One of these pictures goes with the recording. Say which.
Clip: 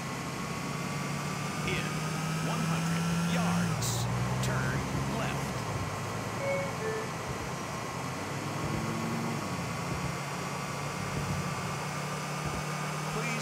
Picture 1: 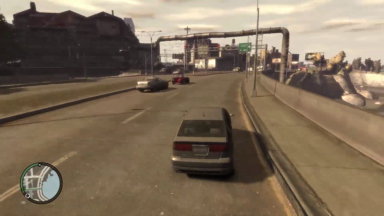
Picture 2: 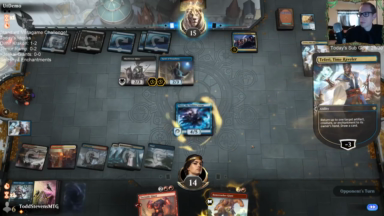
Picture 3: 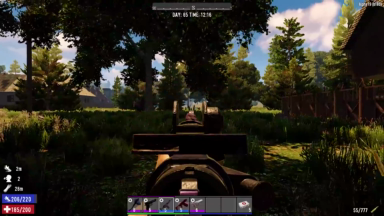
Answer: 1